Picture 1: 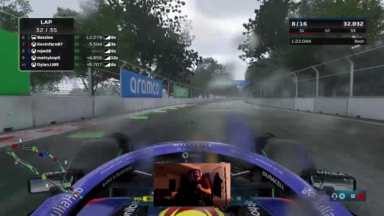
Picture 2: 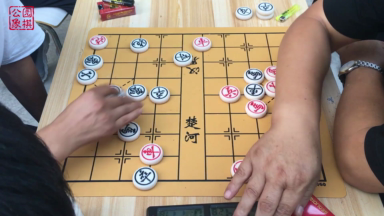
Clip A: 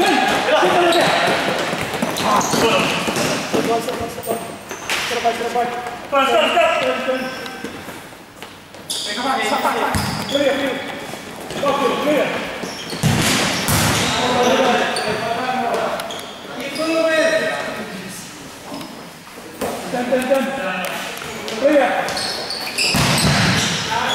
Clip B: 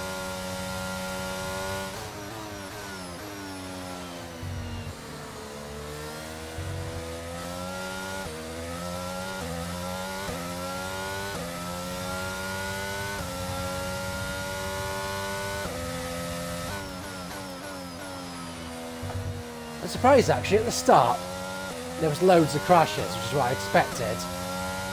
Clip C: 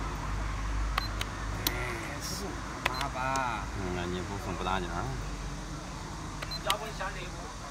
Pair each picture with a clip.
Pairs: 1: B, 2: C